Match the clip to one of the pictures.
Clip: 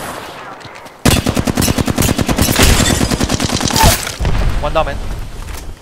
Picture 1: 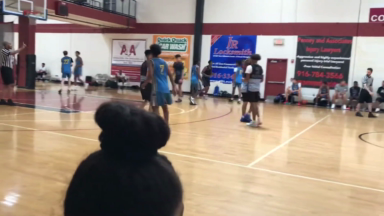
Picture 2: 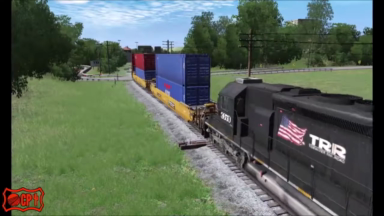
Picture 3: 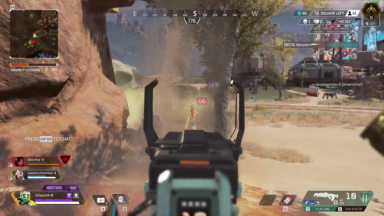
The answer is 3